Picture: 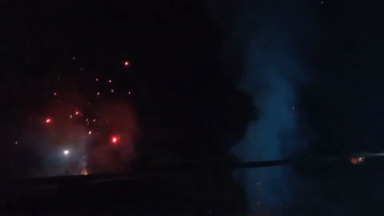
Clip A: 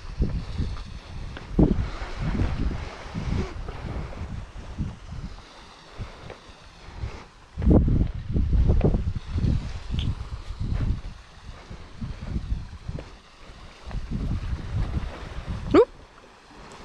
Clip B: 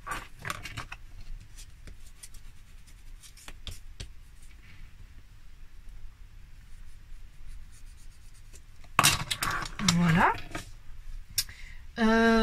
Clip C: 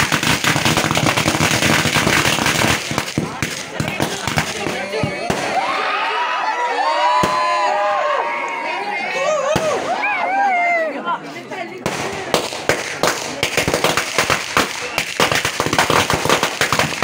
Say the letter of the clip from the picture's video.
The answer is C